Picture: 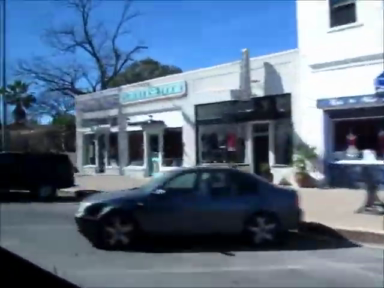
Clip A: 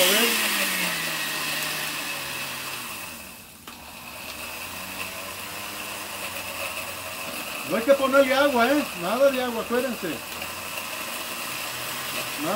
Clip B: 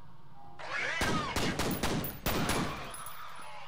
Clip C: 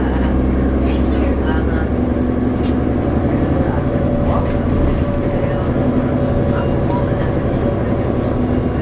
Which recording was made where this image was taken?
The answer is C